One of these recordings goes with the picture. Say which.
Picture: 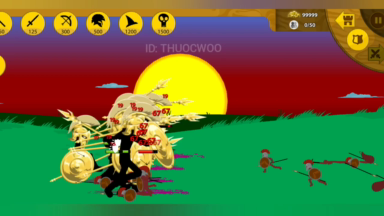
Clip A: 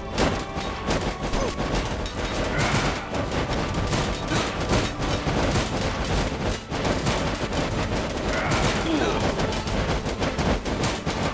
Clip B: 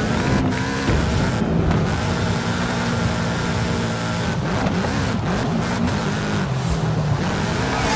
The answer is A